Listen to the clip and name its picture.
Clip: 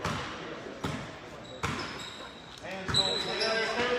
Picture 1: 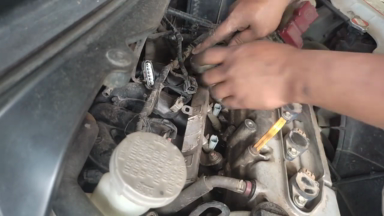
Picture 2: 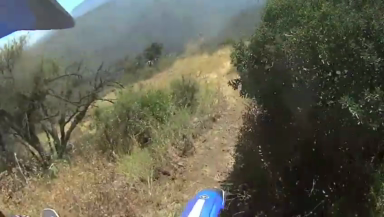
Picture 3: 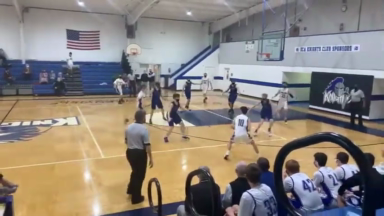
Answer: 3